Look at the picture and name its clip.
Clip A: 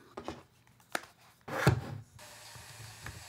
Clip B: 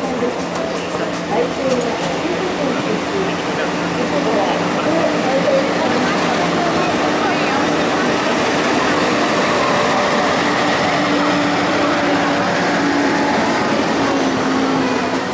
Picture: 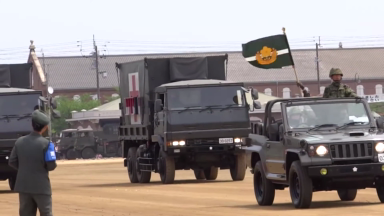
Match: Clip B